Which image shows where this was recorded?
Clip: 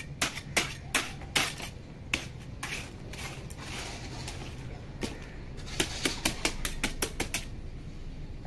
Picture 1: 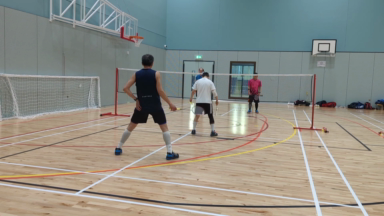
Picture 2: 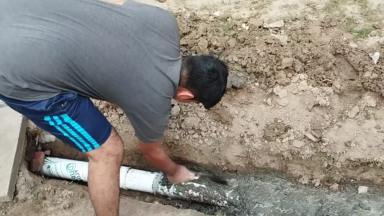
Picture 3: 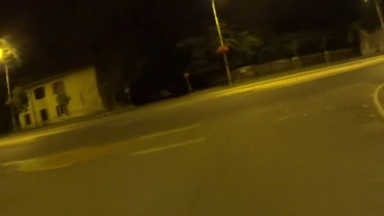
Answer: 2